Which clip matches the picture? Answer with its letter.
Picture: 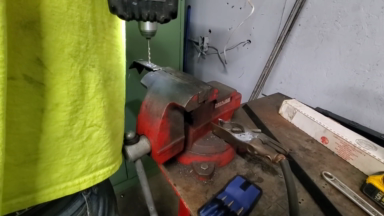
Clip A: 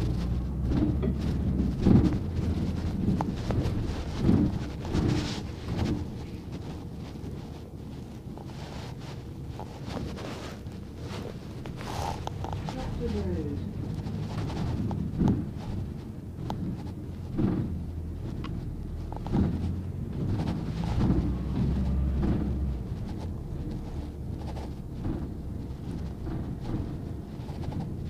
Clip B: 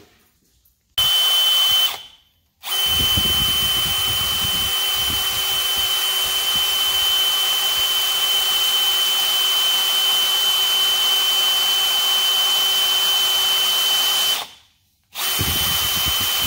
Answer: B